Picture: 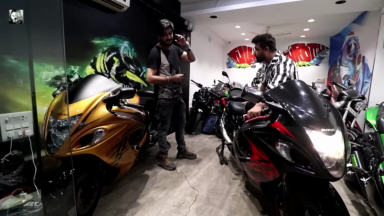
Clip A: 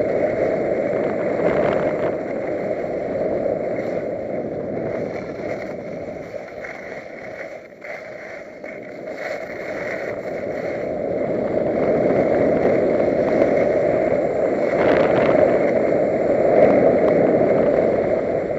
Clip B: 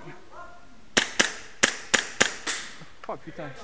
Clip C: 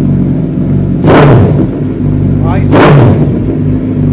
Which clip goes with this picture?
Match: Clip C